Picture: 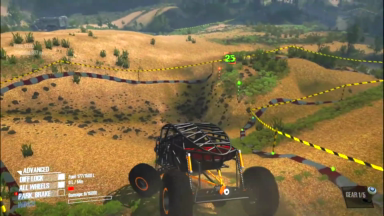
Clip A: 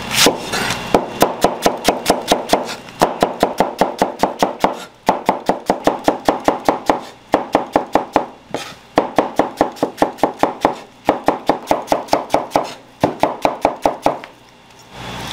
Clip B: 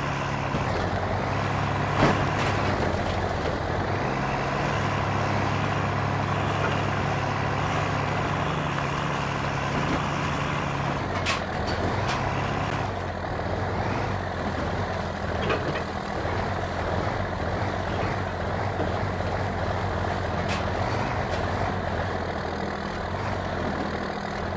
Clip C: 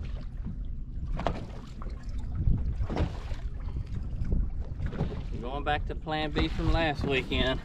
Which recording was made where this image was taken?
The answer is B